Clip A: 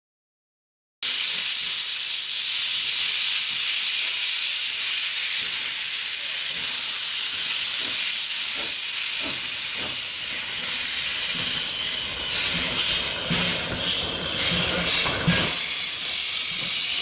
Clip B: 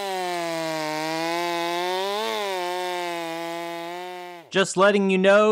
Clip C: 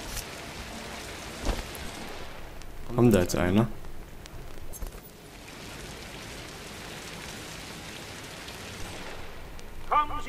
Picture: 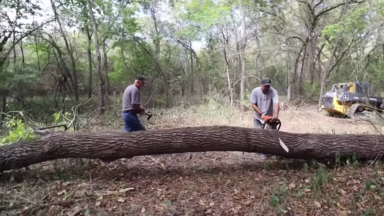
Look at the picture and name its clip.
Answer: B